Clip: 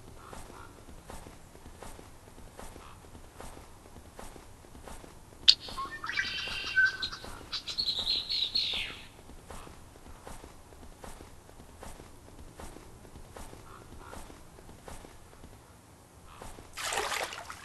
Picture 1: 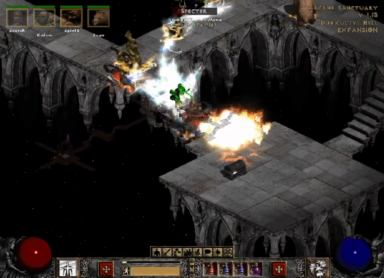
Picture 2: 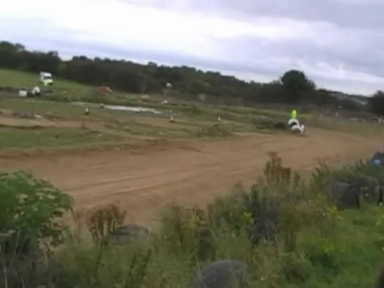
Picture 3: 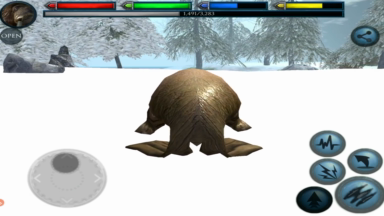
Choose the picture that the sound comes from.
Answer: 3